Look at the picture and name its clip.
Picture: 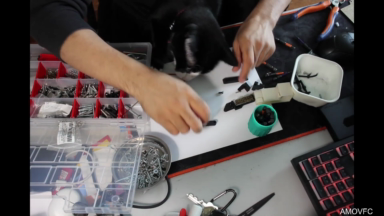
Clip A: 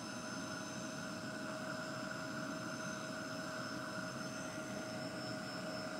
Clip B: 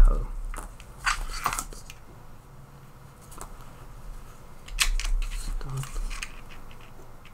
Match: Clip B